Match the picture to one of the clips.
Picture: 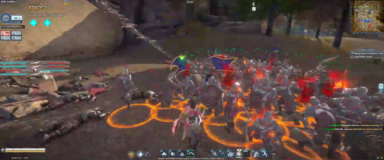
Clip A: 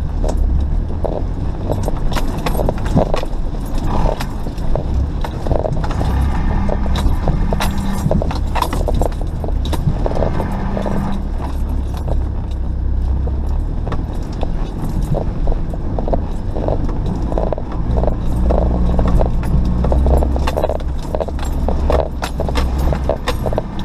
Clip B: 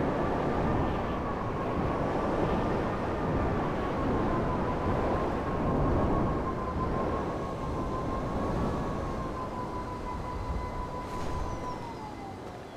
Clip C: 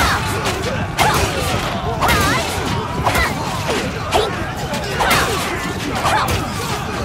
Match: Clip C